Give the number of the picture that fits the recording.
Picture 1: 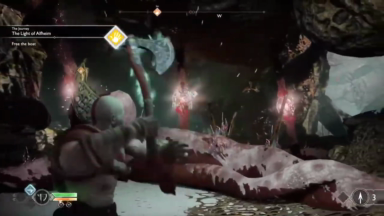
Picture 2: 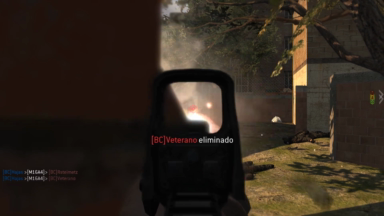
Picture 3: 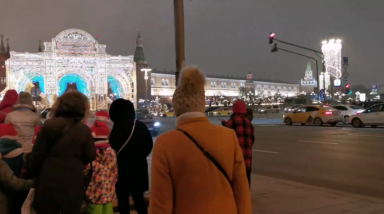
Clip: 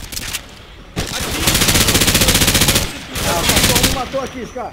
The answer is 2